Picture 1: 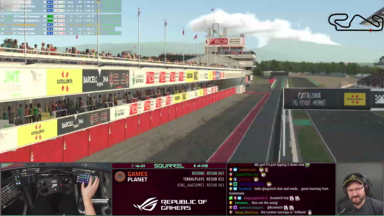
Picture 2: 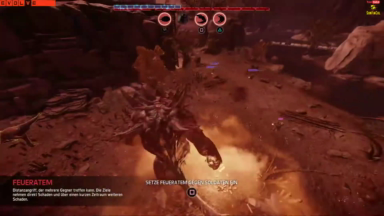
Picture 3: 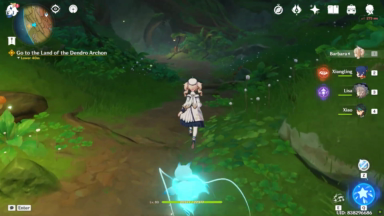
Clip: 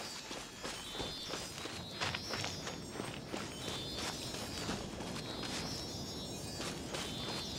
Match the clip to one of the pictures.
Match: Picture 3